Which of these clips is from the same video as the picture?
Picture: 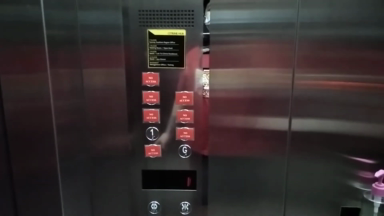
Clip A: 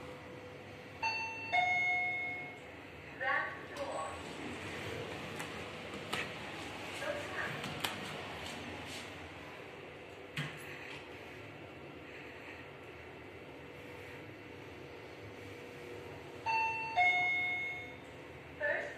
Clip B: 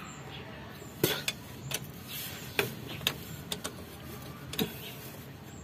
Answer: A